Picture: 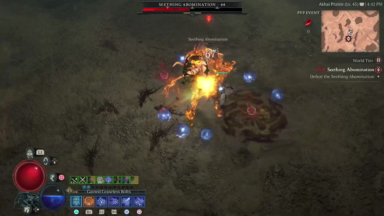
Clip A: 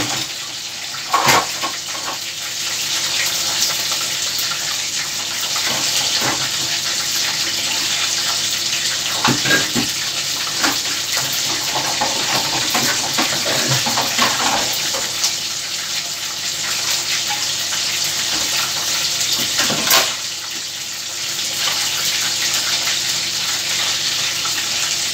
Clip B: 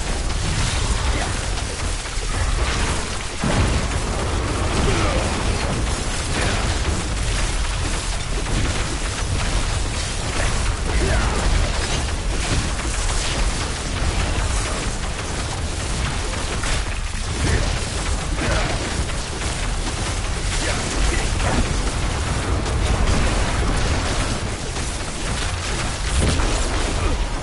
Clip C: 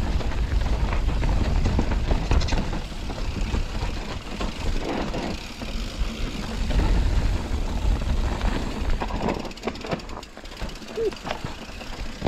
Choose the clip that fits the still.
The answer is B